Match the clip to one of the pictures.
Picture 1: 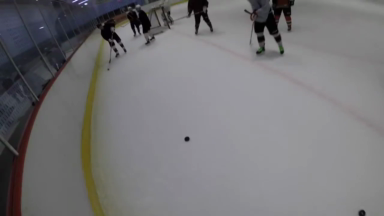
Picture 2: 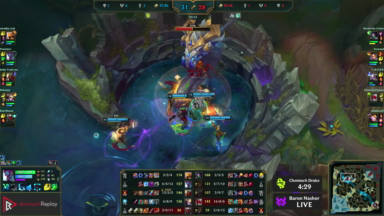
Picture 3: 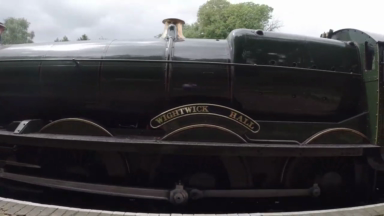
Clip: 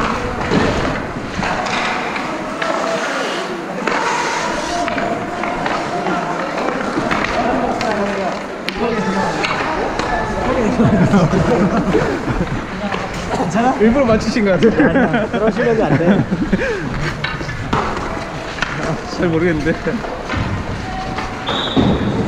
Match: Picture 1